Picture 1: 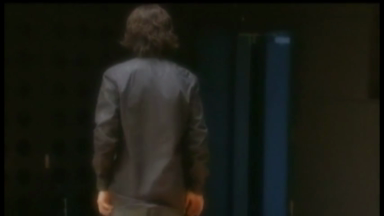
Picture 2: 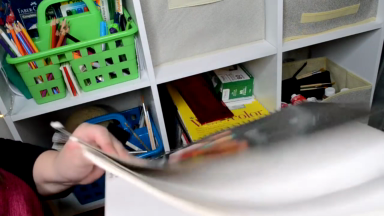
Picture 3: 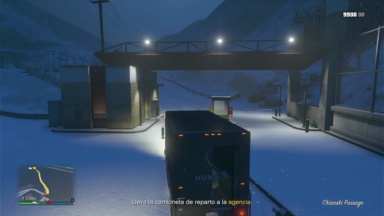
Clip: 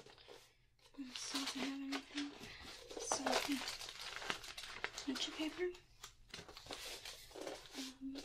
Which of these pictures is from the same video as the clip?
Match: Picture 2